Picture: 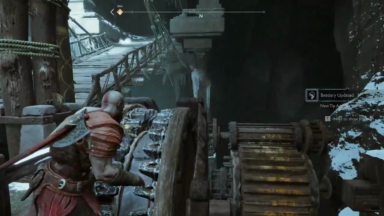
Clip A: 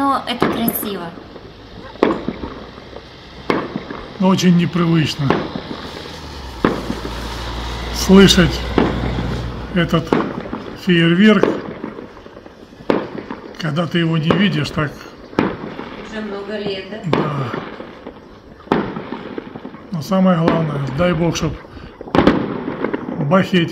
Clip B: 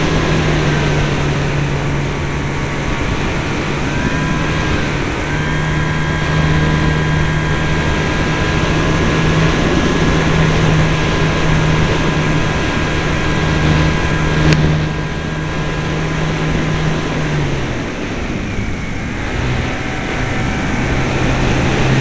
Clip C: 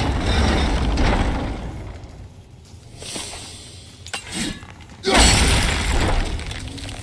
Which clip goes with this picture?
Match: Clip C